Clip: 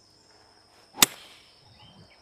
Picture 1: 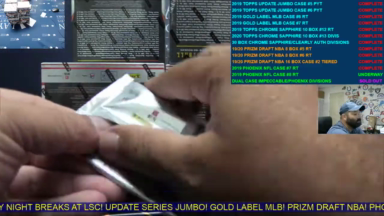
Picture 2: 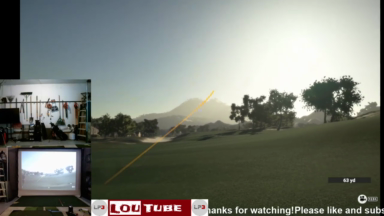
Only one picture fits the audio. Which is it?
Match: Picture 2